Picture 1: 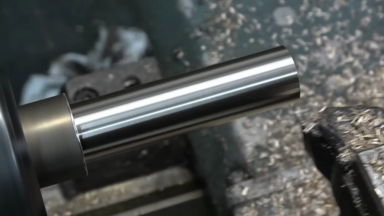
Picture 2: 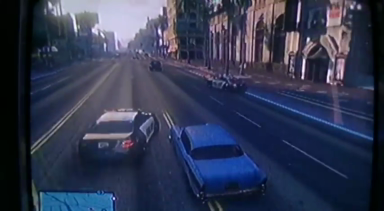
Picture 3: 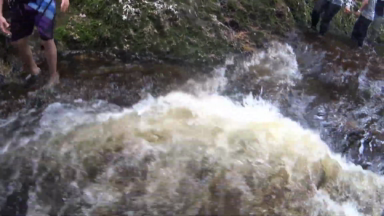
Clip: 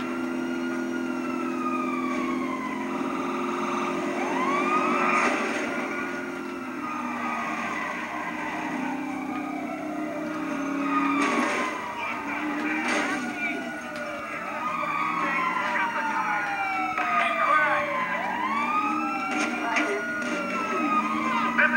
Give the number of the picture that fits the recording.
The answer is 2